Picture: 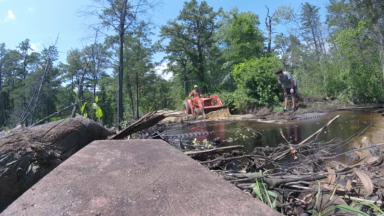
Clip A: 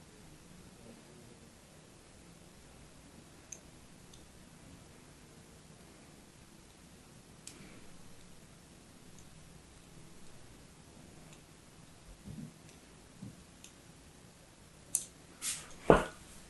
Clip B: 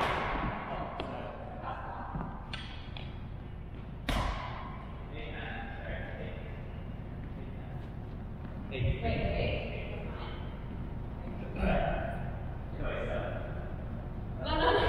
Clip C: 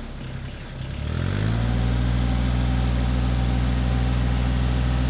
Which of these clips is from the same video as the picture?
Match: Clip C